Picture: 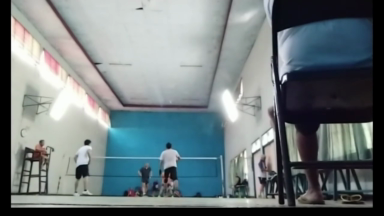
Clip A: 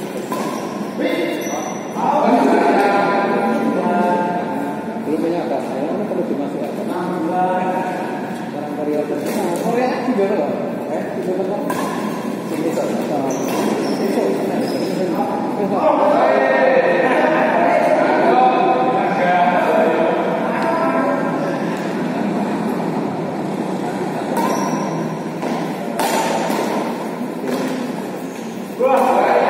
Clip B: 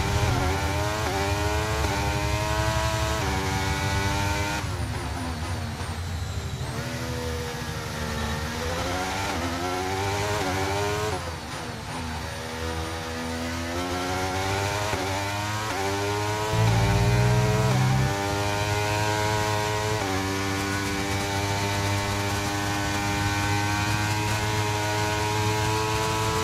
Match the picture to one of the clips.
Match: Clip A